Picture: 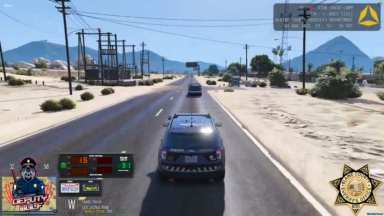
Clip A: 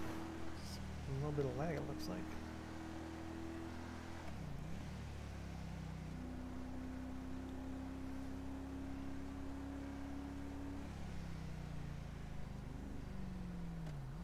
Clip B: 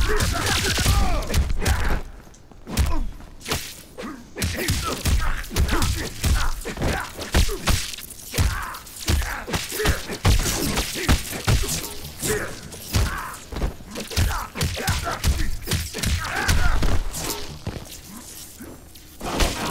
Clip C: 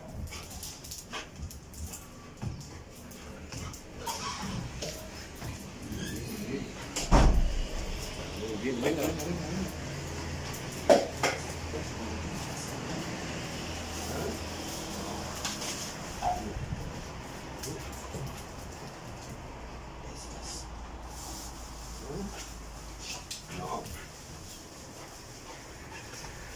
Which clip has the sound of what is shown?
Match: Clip A